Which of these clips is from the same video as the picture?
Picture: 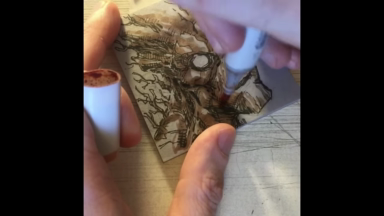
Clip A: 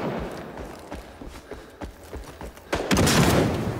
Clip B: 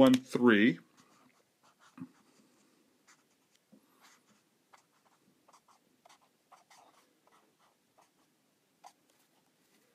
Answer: B